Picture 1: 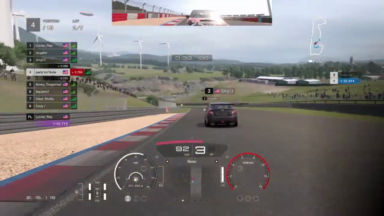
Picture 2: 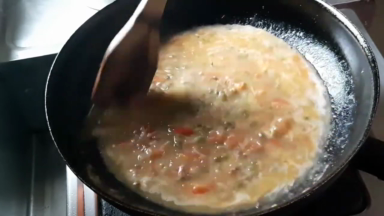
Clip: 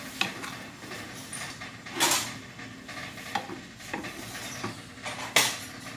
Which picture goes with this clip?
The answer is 2